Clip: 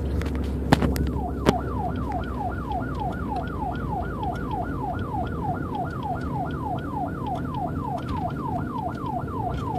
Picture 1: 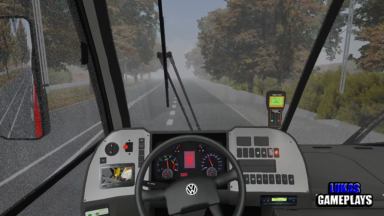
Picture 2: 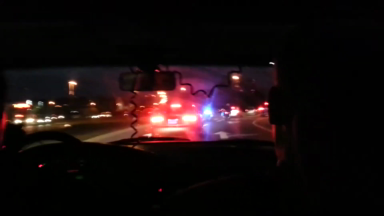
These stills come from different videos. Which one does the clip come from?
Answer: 2